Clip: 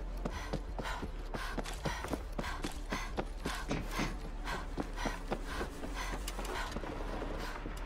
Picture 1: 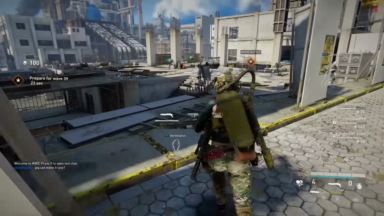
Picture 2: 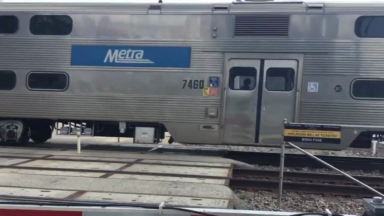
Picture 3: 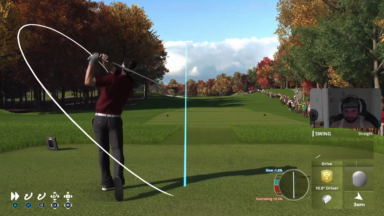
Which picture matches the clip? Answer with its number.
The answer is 1